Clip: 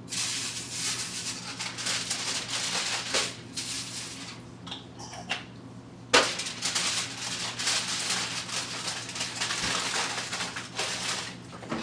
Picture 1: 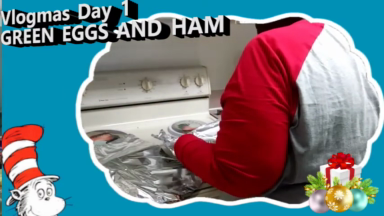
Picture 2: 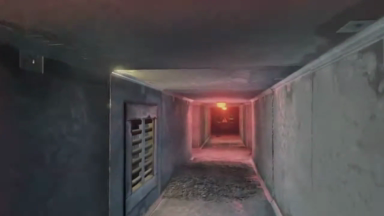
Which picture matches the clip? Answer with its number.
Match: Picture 1